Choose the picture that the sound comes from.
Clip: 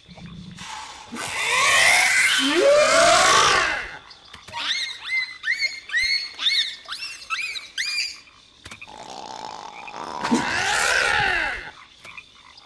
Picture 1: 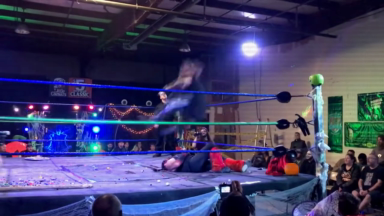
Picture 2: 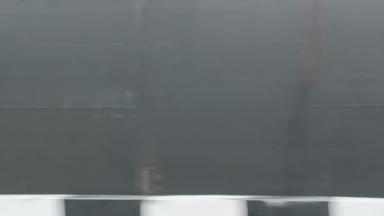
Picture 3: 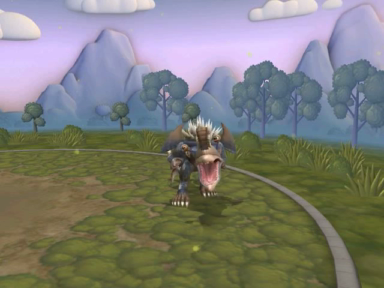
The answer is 3